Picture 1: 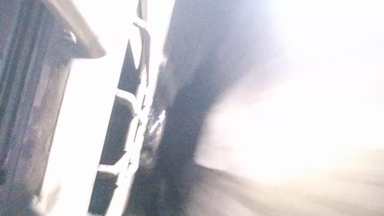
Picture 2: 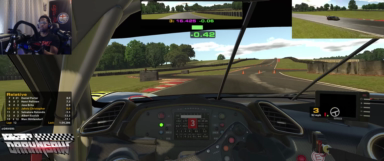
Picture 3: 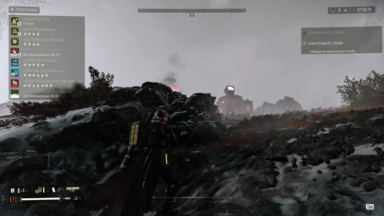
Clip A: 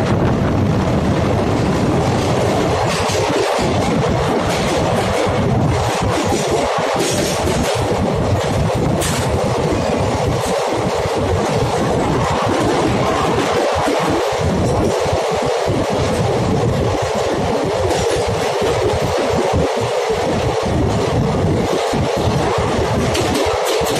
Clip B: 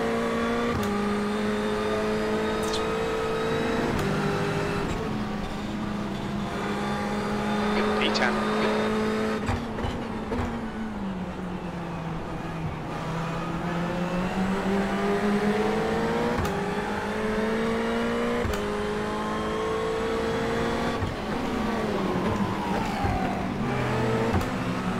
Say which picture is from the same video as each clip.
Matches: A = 1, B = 2